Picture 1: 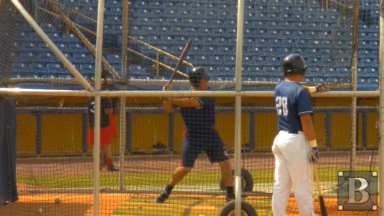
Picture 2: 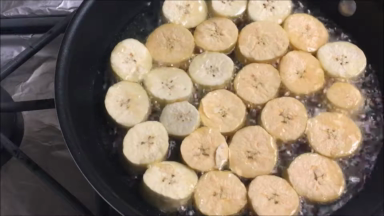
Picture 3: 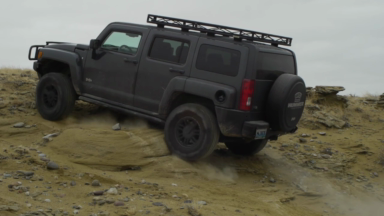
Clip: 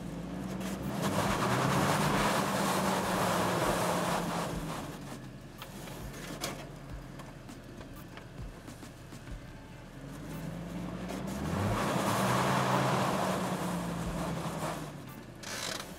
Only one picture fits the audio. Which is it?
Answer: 3